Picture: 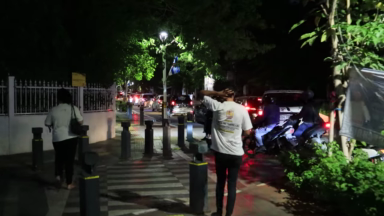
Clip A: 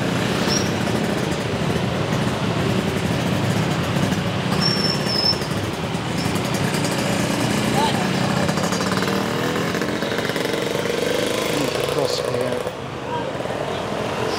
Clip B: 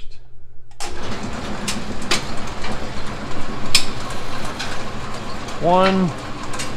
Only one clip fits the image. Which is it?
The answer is A